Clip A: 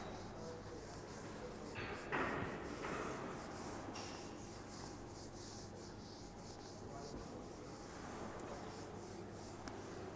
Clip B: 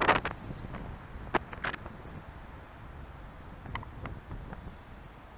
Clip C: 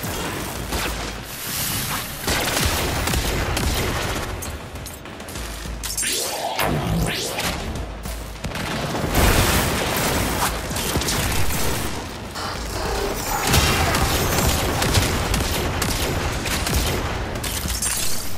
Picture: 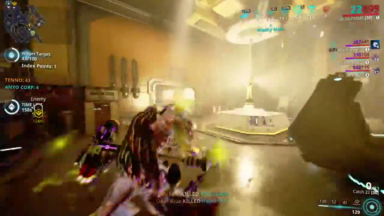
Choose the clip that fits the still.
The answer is C